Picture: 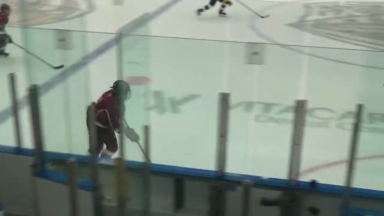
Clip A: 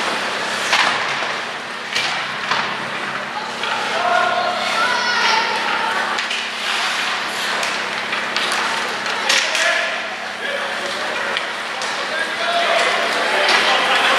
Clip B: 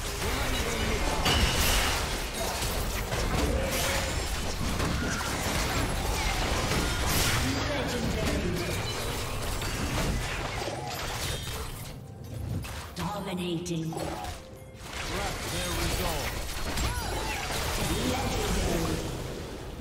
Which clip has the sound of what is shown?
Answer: A